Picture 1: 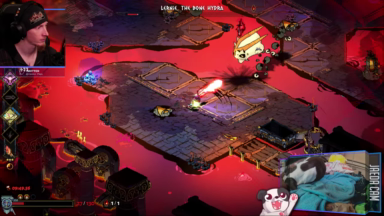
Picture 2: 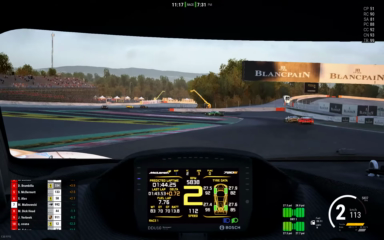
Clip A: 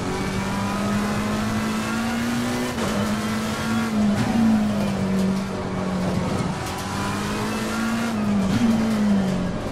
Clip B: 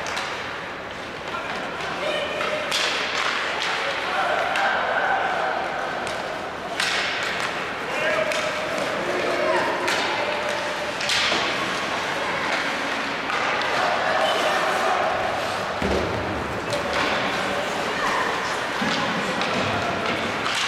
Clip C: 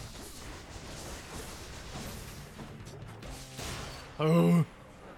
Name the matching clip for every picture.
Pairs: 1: C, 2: A